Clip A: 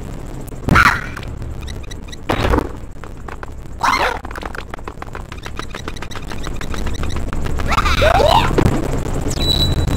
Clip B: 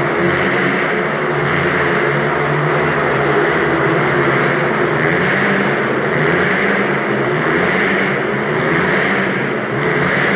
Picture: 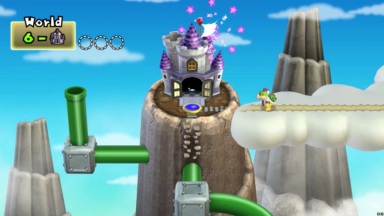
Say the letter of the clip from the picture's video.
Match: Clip A